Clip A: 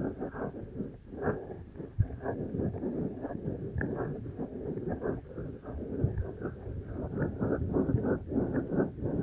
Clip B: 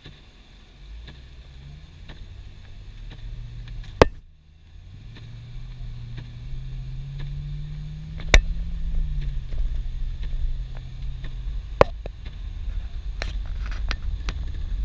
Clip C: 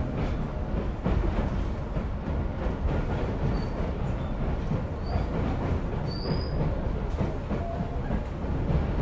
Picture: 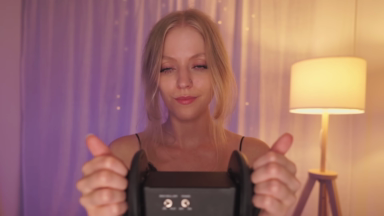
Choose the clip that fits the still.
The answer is A